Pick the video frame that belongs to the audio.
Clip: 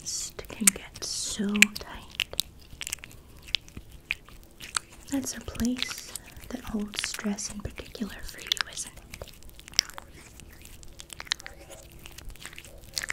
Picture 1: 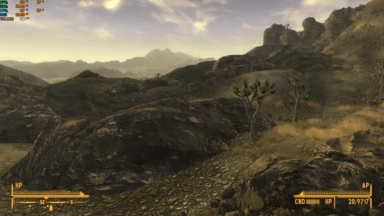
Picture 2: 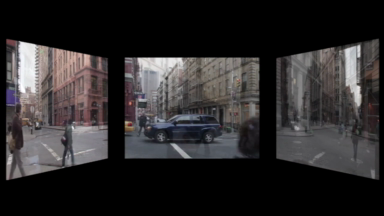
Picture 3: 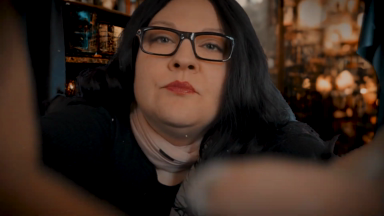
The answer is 3